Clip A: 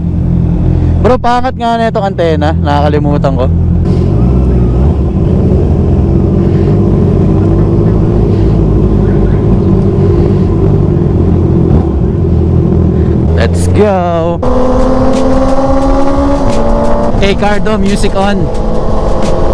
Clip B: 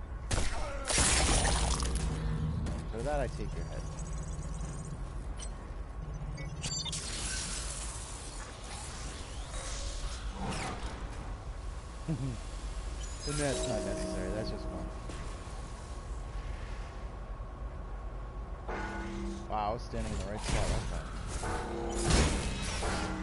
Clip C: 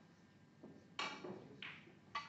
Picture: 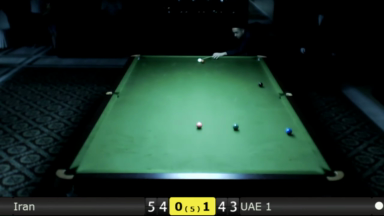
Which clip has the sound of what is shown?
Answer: C